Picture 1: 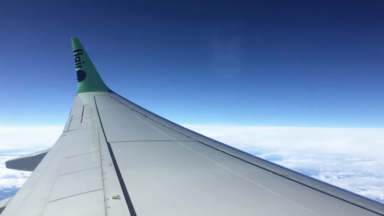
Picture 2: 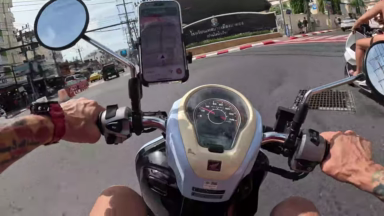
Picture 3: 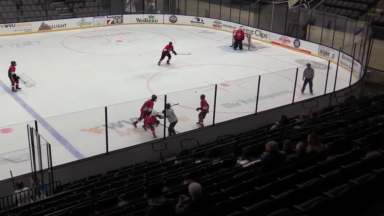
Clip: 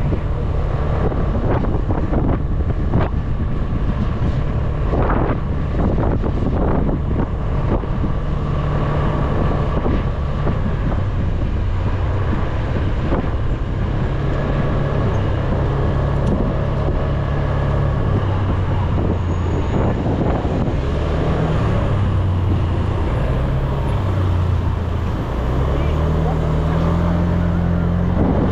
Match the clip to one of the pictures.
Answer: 2